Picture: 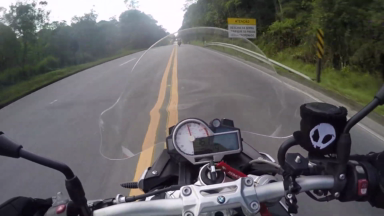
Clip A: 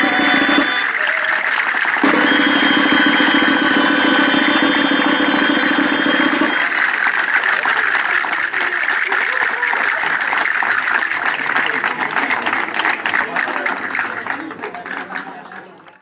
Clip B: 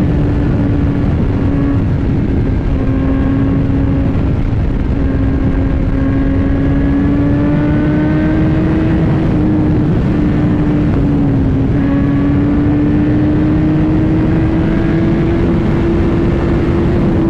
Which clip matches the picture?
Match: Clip B